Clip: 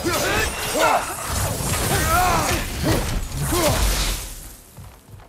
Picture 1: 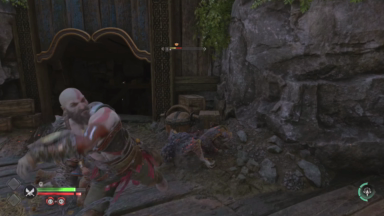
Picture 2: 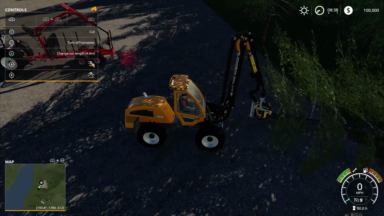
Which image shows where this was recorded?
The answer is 1